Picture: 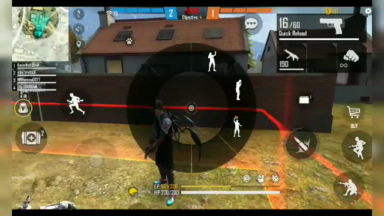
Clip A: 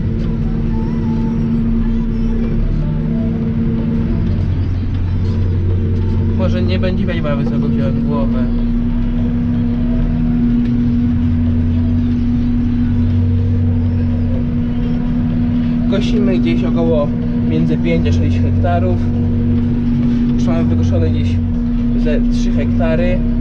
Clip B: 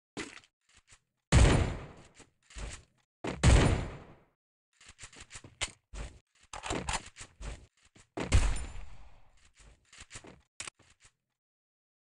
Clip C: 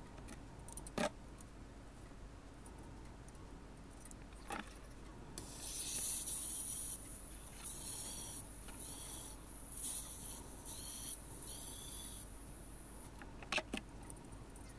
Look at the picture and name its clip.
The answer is B